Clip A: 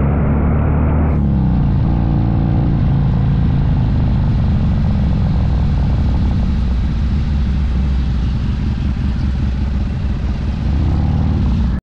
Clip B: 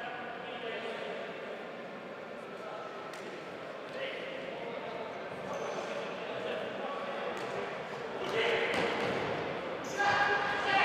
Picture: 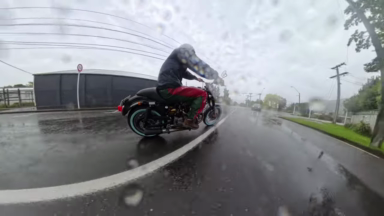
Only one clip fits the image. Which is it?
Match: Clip A